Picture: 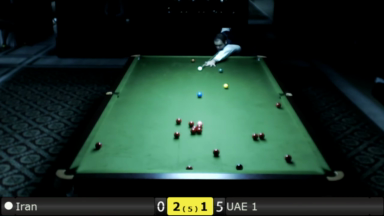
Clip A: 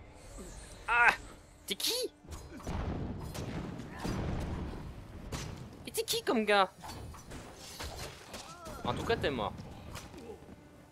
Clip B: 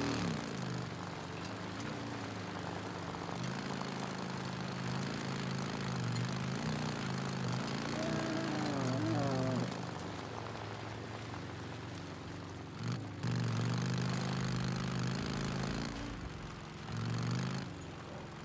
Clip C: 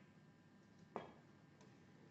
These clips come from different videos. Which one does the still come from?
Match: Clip C